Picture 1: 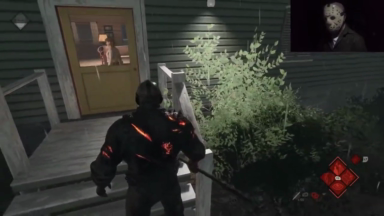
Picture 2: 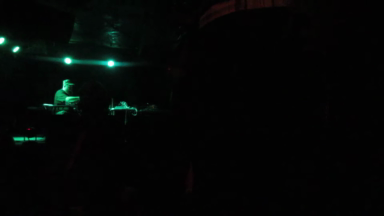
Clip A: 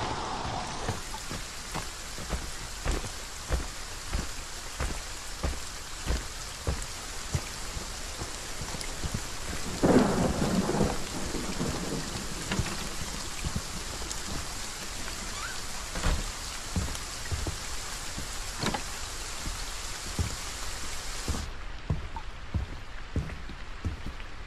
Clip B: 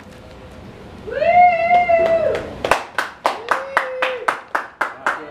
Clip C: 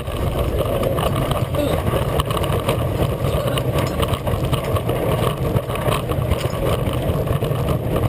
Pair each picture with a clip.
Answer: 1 A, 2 B